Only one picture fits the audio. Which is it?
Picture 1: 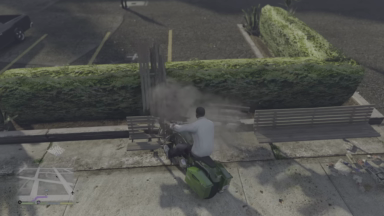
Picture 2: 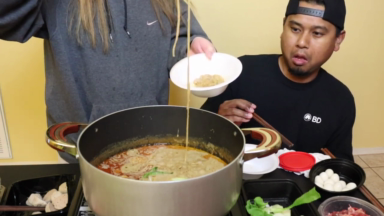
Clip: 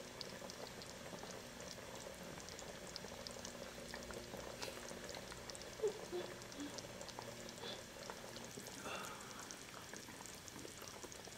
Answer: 2